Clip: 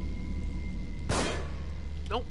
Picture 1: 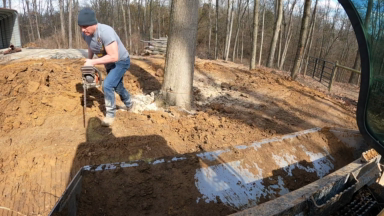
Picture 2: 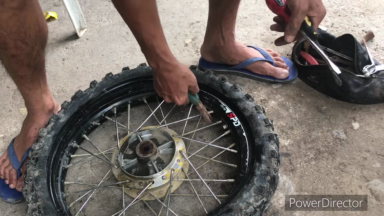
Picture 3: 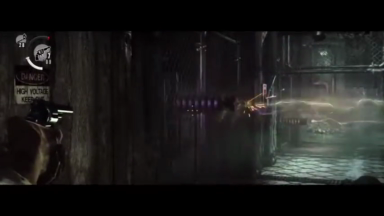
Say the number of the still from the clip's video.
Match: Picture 3